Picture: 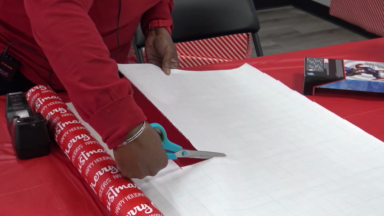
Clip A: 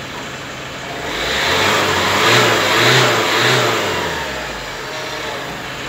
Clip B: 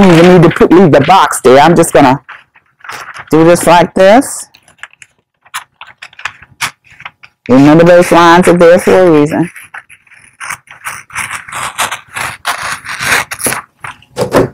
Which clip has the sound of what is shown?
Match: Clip B